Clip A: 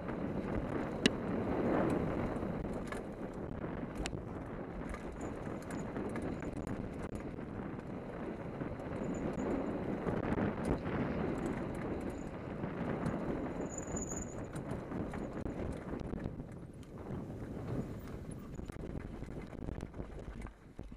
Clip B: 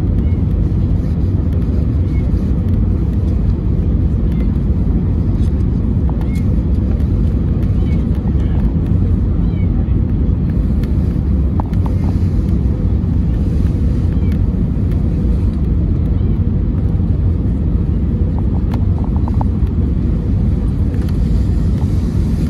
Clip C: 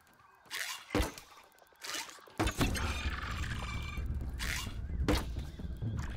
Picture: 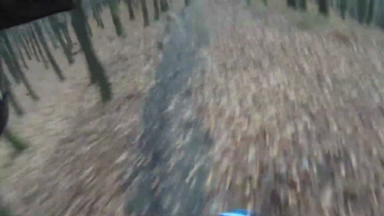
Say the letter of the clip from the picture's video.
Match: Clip A